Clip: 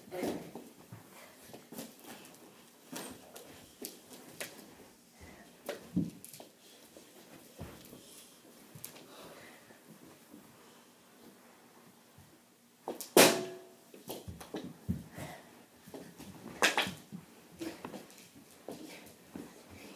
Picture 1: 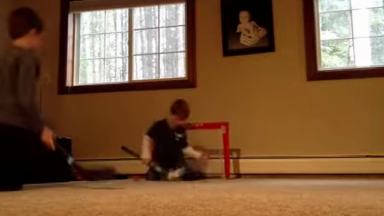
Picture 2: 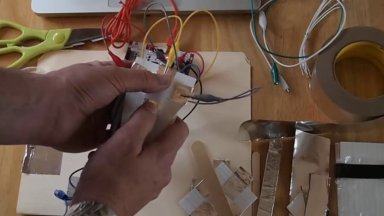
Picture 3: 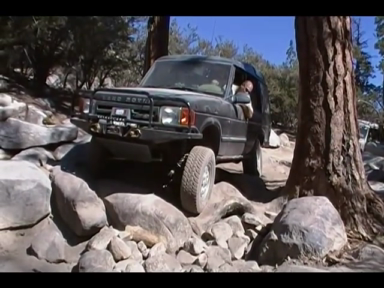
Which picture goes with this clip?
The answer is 1